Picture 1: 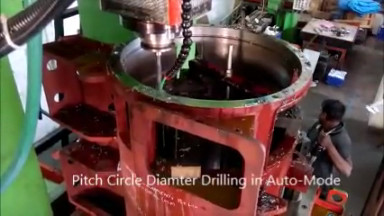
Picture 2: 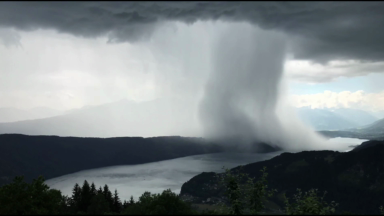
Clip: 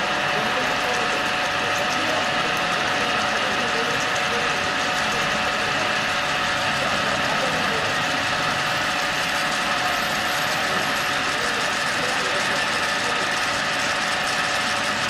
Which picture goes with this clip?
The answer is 1